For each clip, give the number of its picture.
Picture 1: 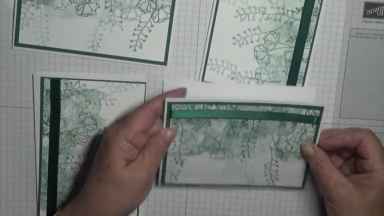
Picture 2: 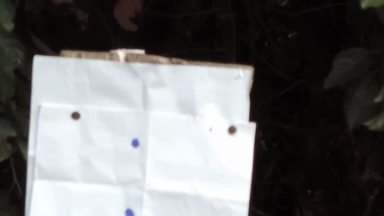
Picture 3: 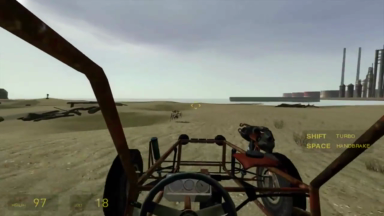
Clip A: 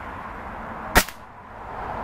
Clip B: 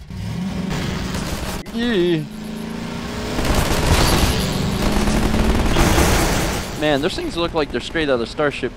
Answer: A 2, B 3